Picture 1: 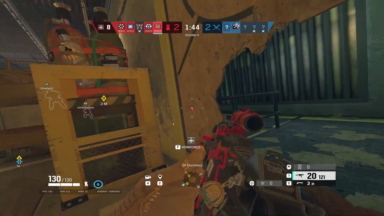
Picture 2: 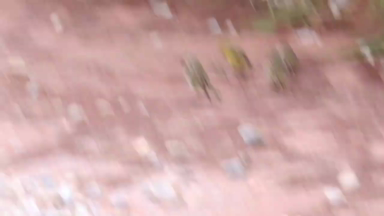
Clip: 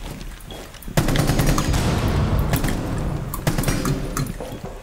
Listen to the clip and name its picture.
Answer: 1